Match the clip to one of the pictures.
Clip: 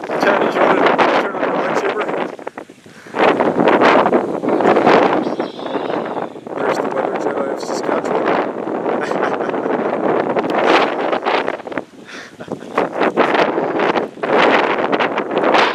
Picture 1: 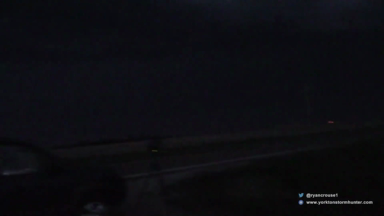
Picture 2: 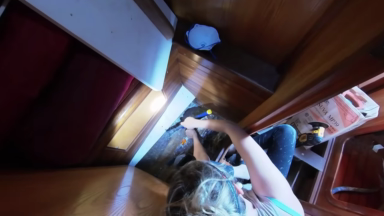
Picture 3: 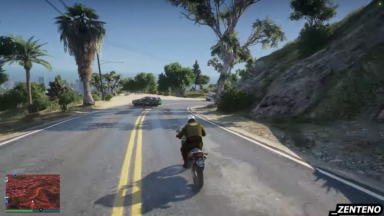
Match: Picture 1